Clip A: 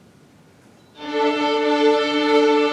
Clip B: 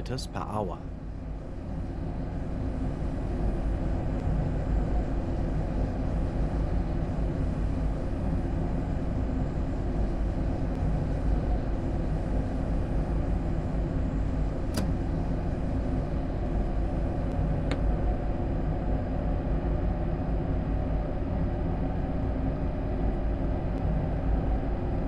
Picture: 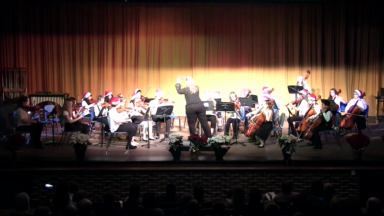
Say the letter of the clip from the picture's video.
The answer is A